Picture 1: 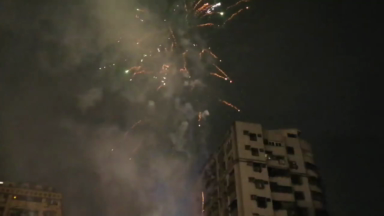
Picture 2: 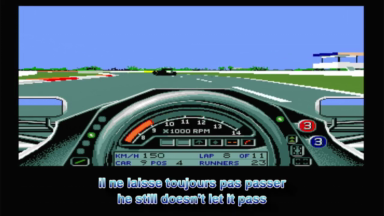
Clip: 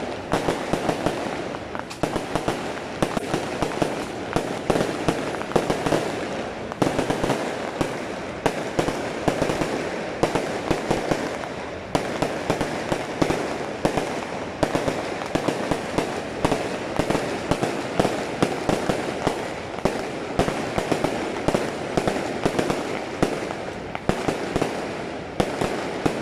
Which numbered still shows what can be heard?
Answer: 1